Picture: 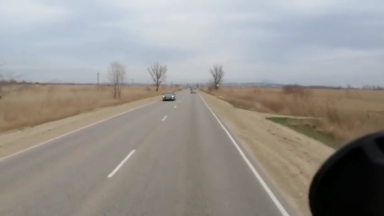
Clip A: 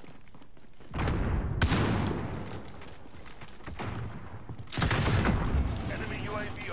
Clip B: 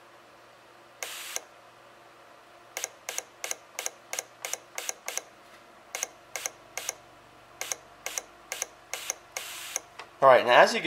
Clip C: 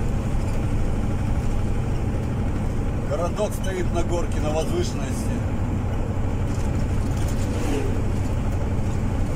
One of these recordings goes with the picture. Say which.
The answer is C